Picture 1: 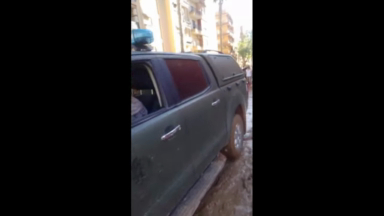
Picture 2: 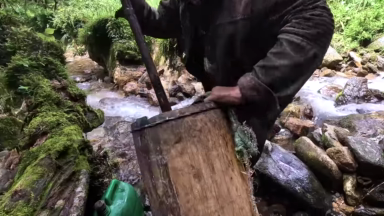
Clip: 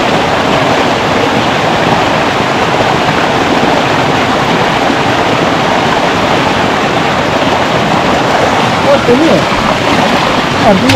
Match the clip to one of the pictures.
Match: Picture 2